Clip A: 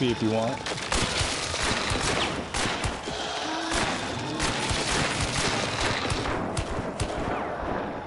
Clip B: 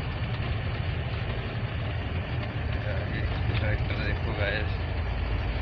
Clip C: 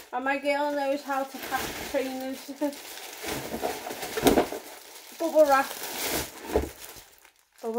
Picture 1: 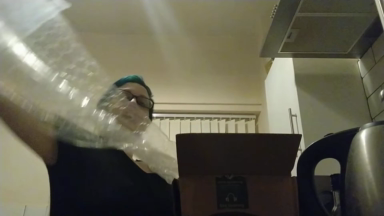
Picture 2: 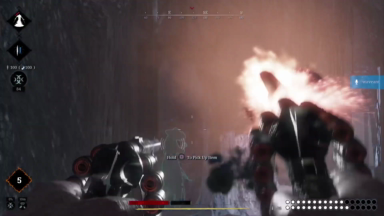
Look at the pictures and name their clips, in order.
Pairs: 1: C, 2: A